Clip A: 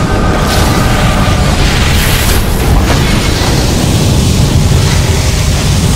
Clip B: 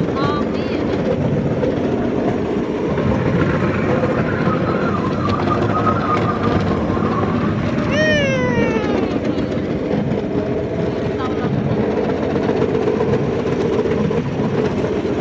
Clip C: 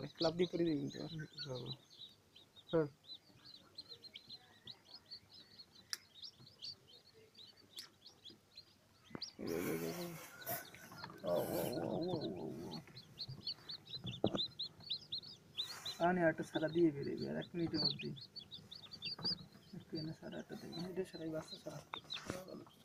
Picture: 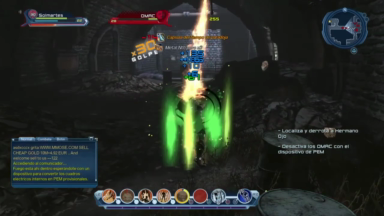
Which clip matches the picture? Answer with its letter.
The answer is A